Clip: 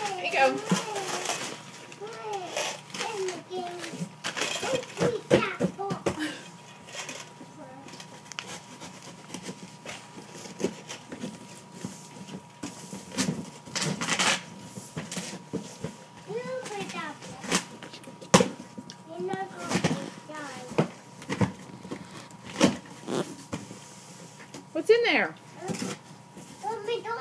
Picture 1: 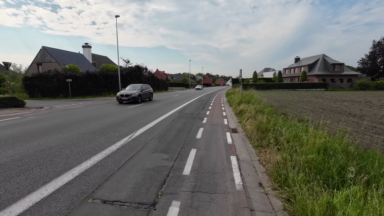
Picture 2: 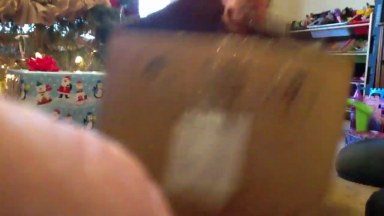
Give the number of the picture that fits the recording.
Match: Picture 2